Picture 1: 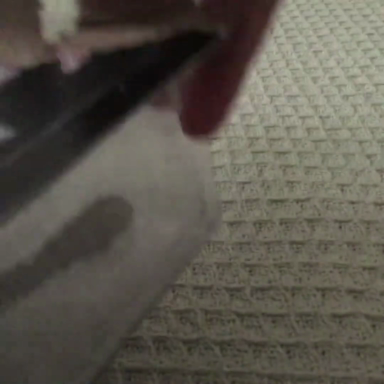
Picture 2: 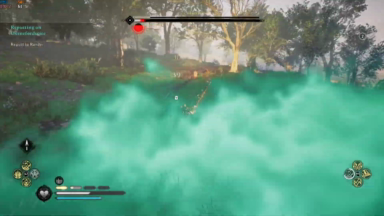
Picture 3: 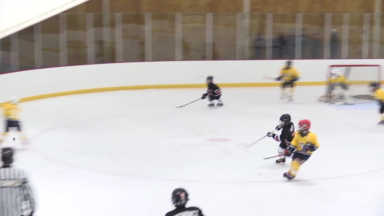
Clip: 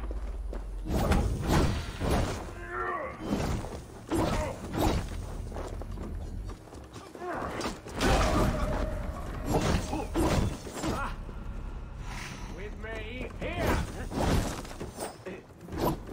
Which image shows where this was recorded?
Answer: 2